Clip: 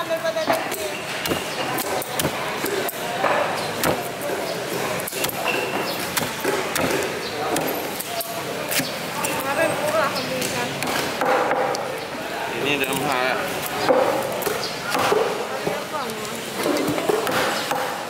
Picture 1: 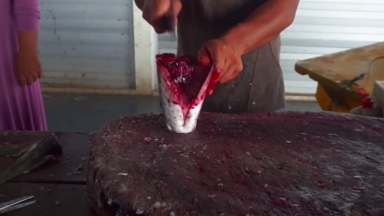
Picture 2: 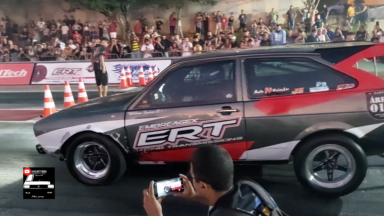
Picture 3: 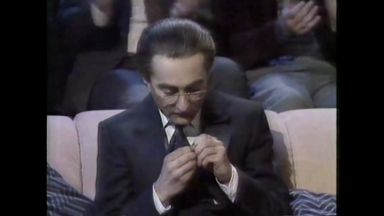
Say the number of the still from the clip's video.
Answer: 1